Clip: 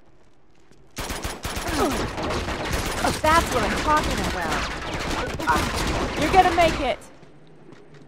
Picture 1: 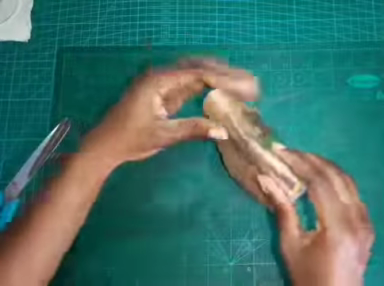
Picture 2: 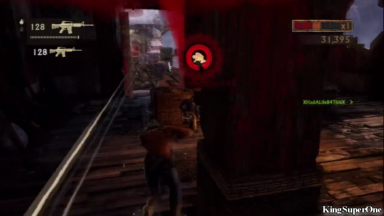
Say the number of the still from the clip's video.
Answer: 2